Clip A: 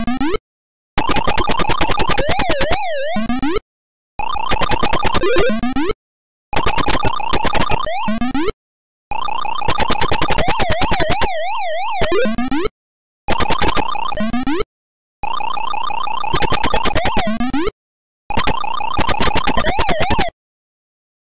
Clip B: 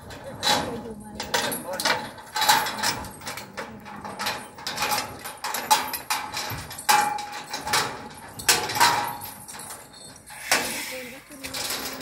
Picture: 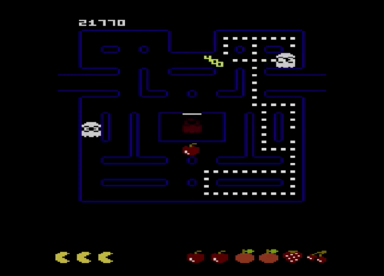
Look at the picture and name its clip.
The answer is A